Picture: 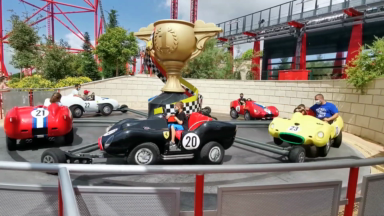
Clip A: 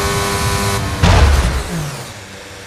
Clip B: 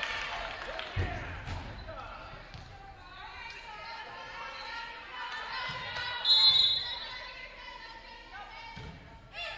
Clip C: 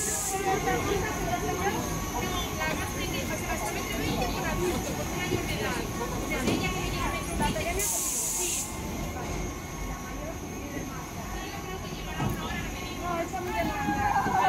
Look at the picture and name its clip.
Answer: C